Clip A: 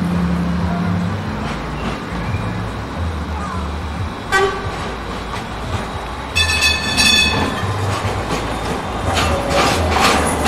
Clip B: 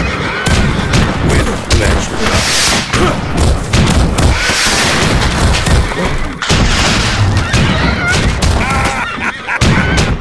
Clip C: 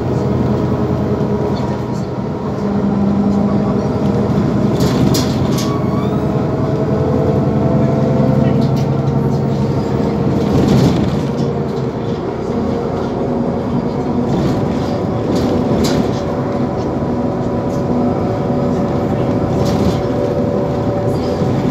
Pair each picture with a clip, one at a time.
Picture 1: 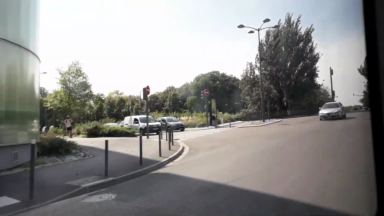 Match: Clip C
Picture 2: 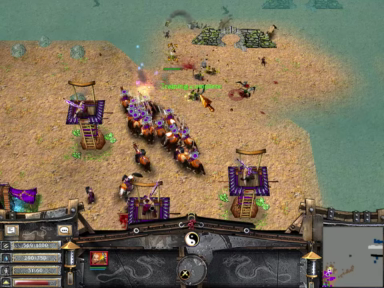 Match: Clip B